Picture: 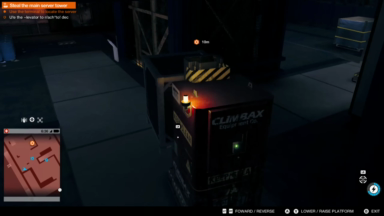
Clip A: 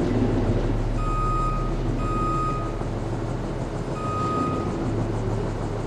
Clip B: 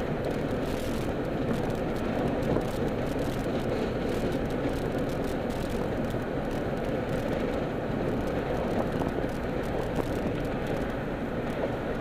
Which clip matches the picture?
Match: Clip A